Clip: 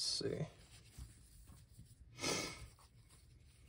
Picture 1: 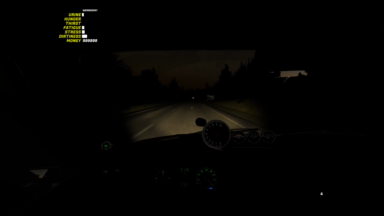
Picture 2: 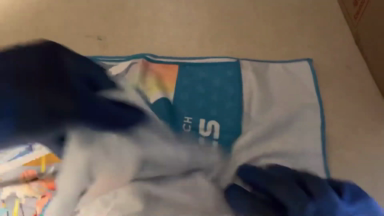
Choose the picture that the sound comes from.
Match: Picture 2